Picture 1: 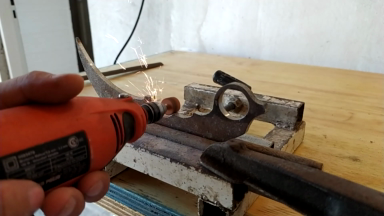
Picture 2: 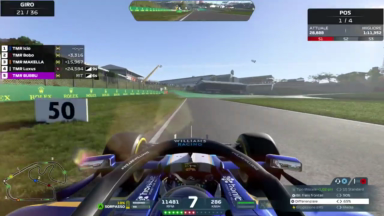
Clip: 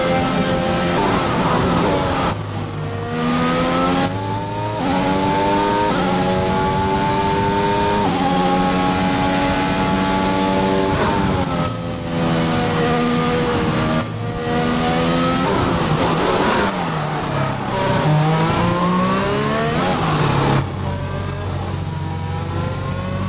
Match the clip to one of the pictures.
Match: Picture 2